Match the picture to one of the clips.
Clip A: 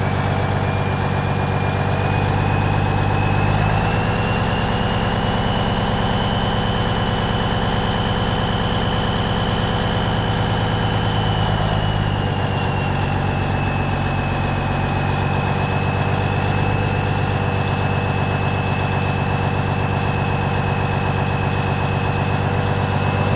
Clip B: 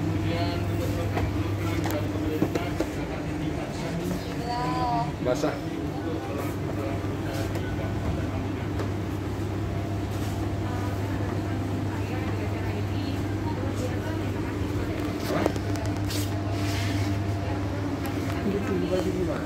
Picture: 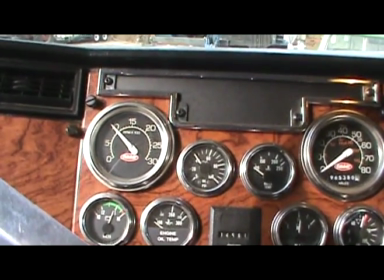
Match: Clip A